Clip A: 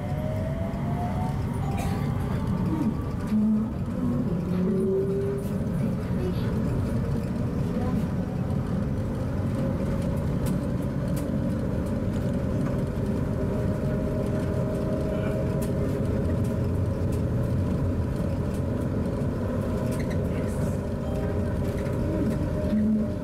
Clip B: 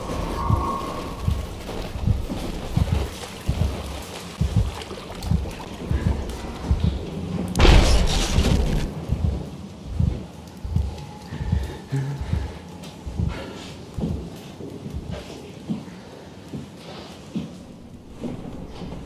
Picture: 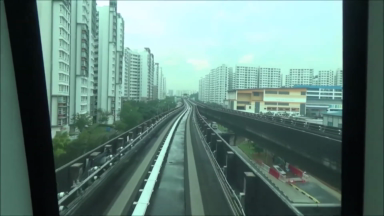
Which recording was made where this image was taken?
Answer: A